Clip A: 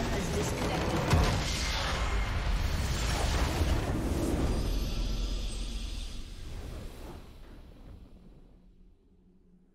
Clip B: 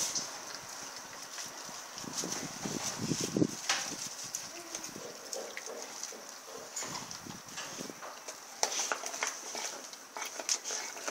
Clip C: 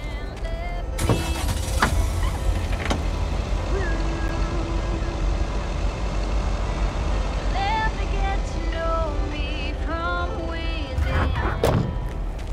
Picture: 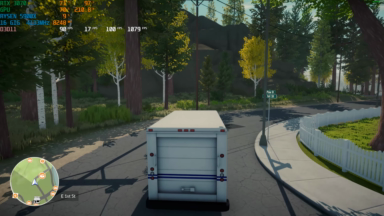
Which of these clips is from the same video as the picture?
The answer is C